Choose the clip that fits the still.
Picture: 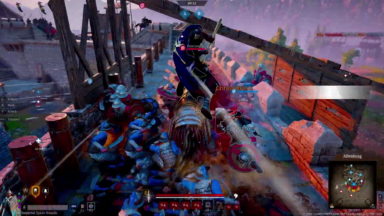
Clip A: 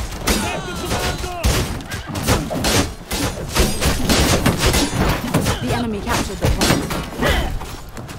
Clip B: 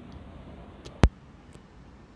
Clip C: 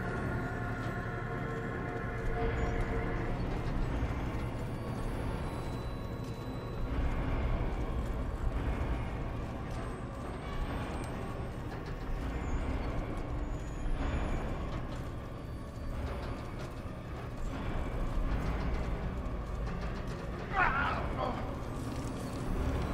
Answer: A